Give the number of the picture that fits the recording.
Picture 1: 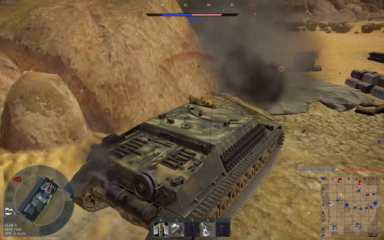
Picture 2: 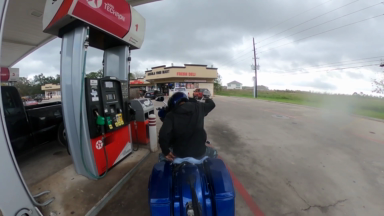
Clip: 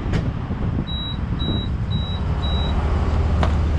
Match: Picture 2